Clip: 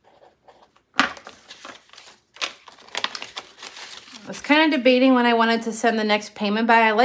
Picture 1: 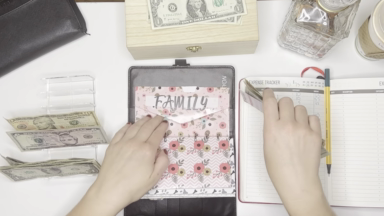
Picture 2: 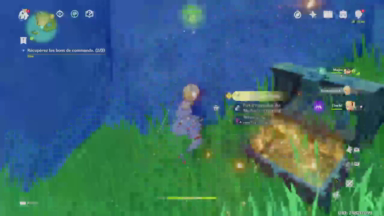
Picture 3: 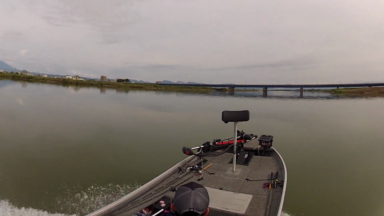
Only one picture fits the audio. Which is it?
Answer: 1